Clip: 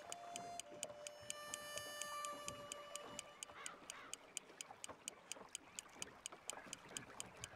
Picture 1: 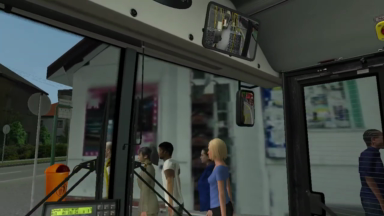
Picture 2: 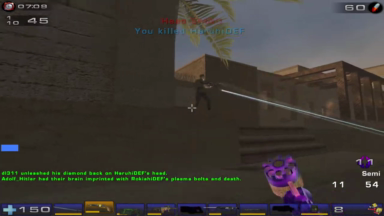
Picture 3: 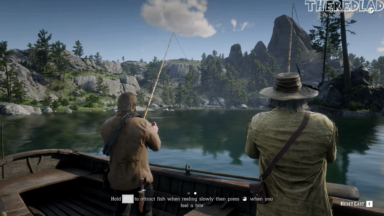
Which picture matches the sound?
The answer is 3